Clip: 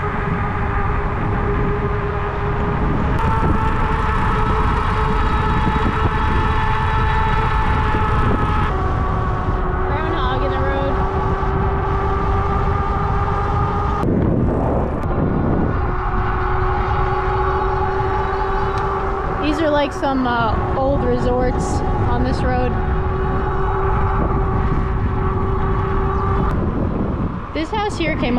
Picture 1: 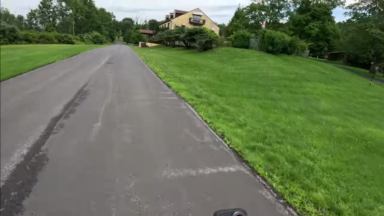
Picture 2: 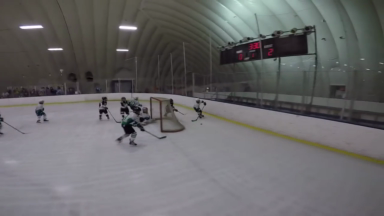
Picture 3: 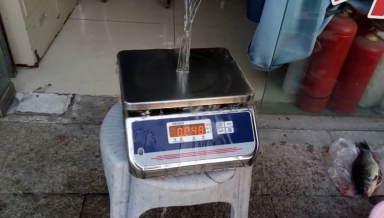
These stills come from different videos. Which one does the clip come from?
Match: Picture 1